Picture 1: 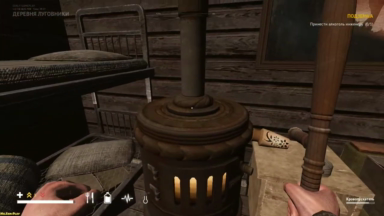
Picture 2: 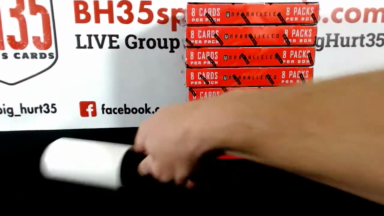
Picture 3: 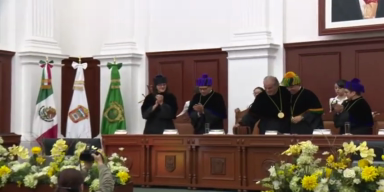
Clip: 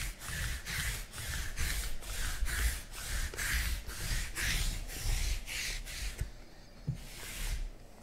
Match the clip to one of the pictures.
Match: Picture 2